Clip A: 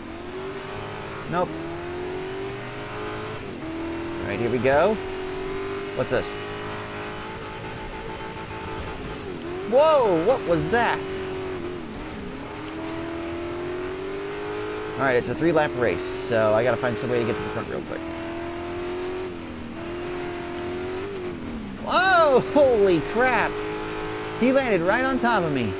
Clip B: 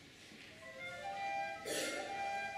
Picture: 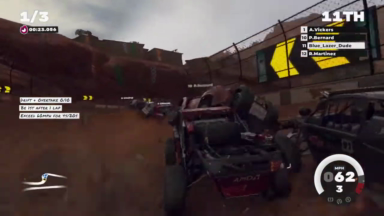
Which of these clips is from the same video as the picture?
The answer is A